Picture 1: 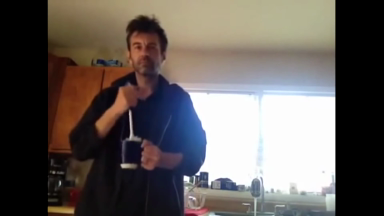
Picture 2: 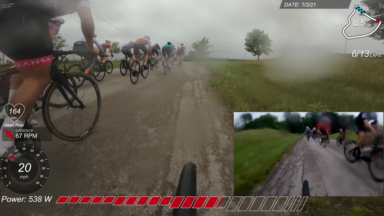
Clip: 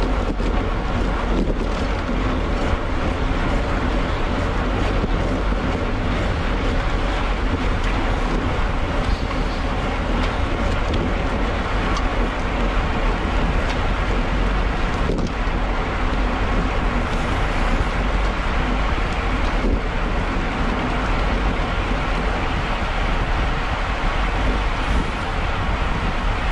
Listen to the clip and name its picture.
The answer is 2